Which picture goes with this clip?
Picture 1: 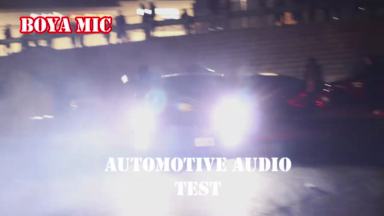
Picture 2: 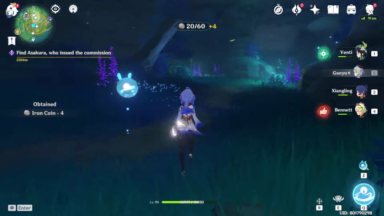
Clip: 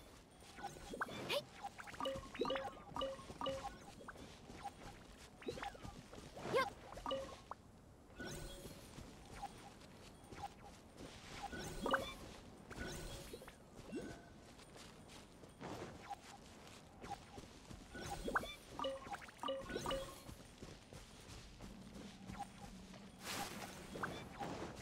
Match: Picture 2